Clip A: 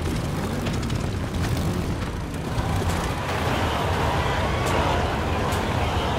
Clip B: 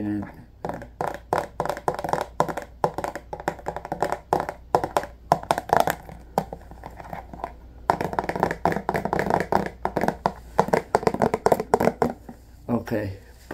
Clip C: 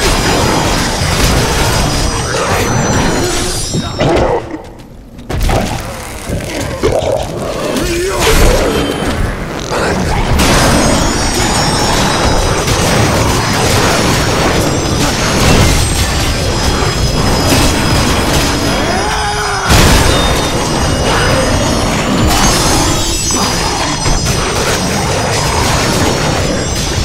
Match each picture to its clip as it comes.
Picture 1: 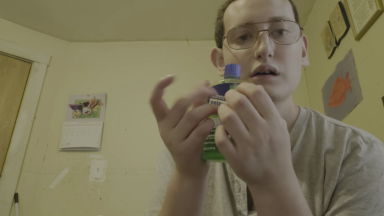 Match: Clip B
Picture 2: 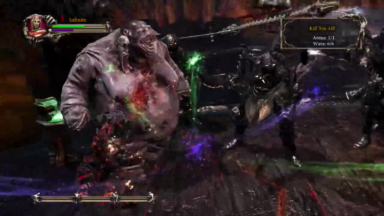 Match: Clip C